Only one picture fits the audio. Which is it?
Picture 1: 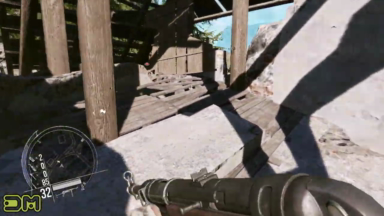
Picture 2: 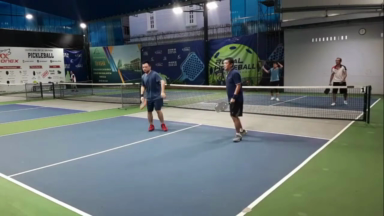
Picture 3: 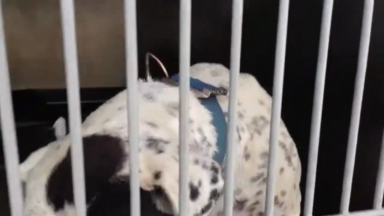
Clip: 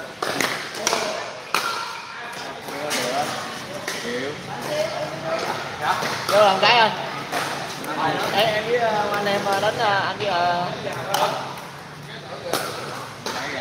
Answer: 2